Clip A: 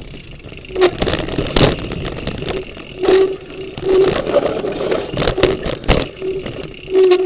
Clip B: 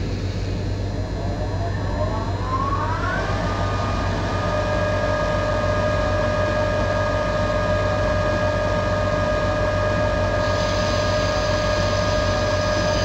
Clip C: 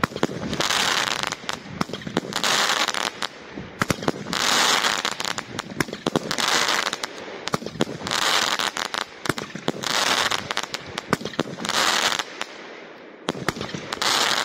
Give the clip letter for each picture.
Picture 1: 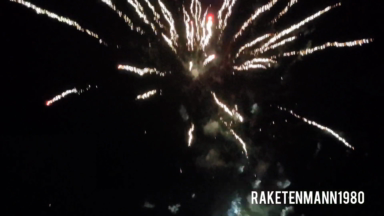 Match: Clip C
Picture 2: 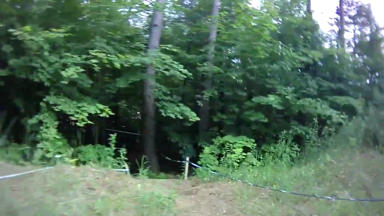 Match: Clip A